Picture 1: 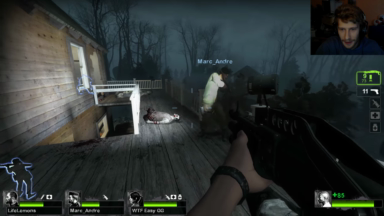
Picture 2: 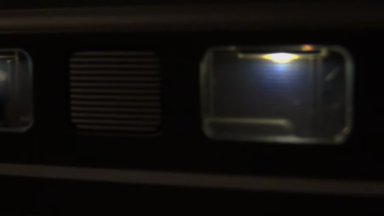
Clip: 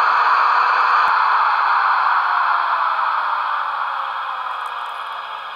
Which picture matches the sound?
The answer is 2